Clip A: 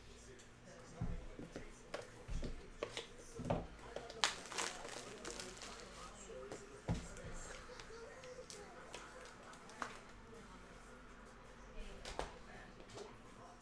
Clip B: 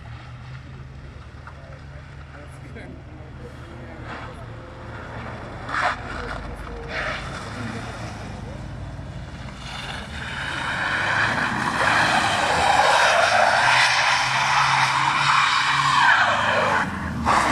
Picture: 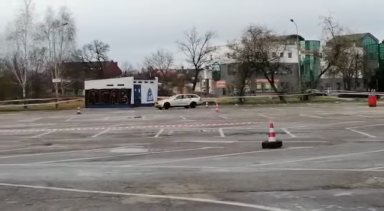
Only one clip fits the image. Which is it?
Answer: B